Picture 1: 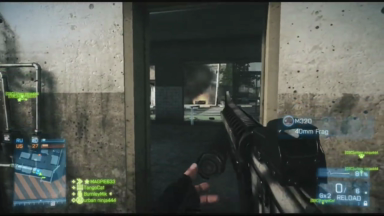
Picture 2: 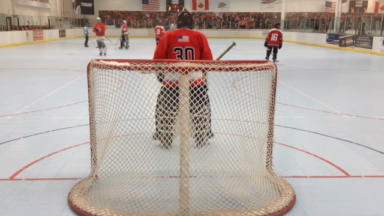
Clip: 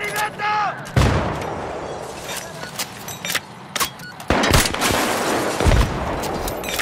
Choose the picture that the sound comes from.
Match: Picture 1